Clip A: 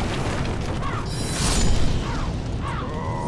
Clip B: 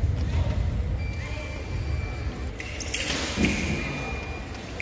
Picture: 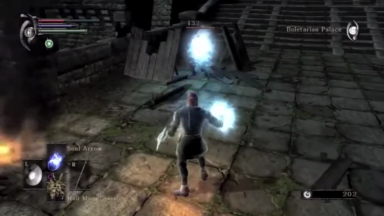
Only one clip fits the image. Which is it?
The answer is A